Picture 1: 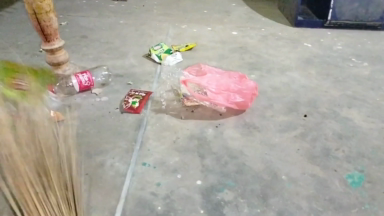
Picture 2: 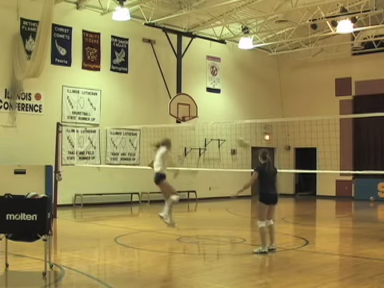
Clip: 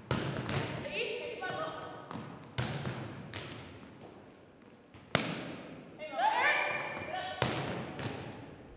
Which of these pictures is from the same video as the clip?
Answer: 2